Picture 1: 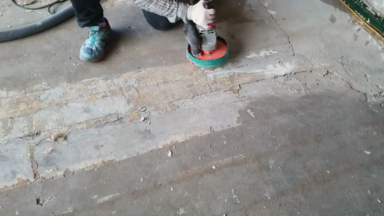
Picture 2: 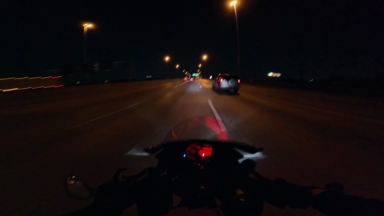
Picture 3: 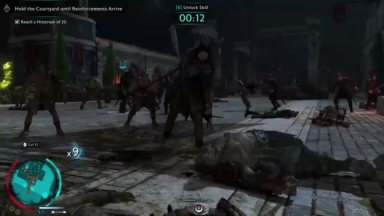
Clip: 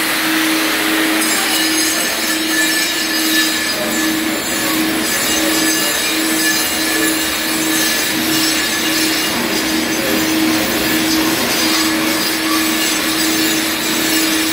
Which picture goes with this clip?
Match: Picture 1